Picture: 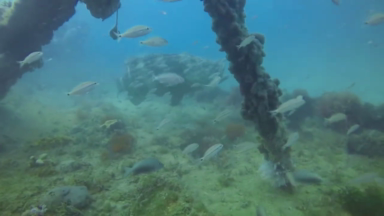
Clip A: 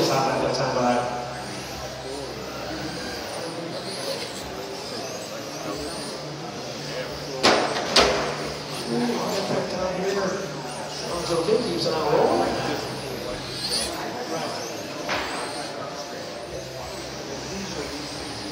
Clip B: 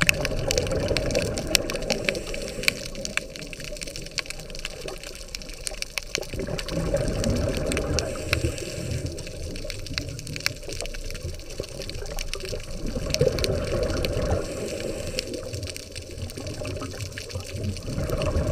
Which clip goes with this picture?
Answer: B